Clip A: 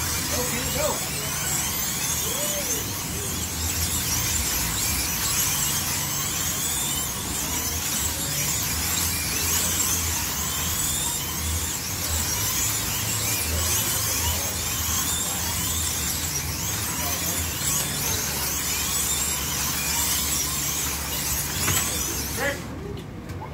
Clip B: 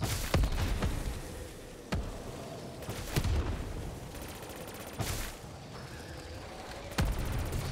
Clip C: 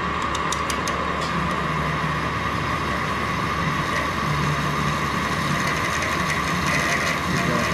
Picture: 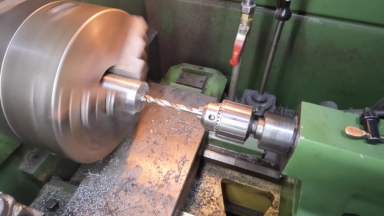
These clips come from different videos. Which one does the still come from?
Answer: C